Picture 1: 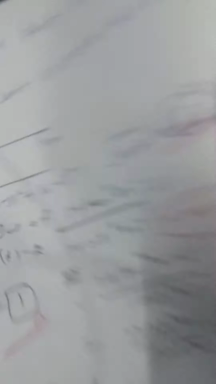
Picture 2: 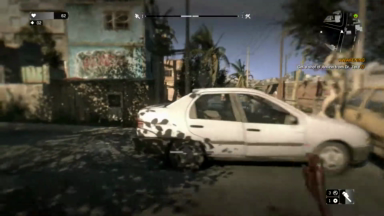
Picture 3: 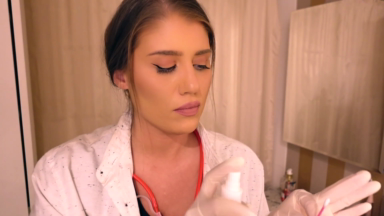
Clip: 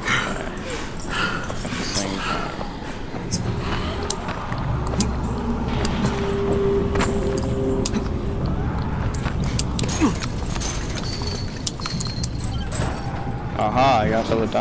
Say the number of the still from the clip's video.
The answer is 2